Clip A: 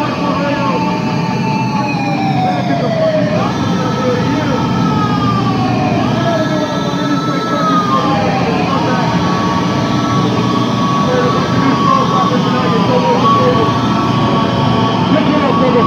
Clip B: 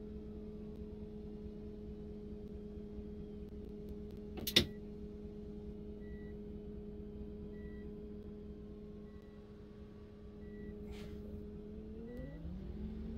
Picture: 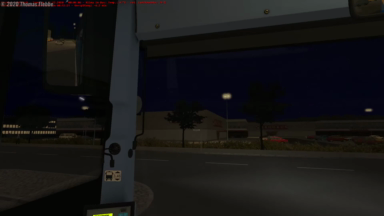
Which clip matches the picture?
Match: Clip B